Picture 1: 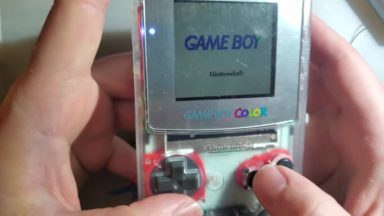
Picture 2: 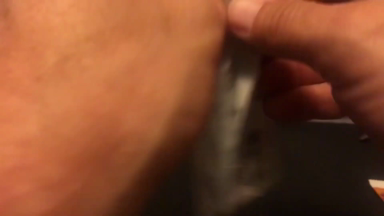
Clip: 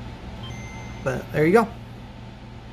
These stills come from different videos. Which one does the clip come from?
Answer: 1